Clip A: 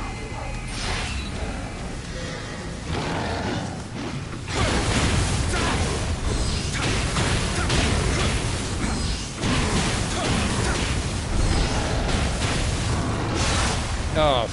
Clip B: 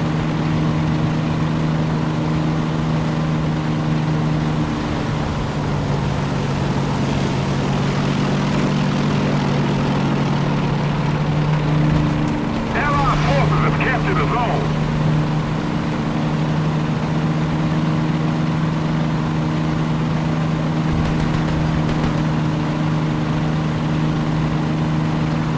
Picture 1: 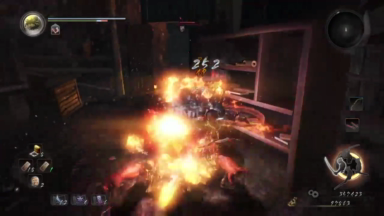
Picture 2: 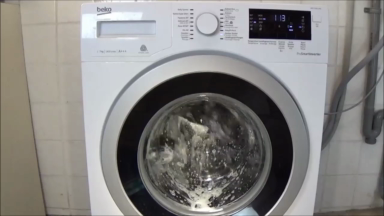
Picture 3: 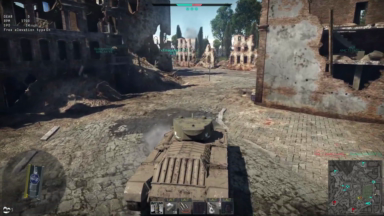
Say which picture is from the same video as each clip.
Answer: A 1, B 3